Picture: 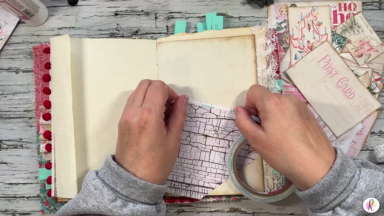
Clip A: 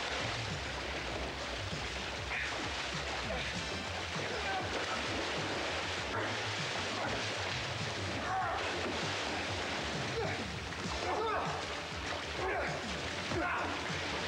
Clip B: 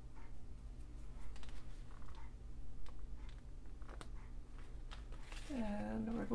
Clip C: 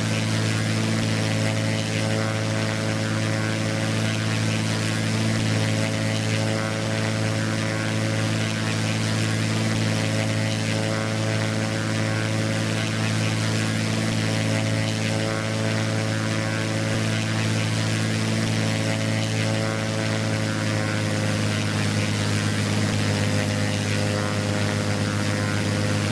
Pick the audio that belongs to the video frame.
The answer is B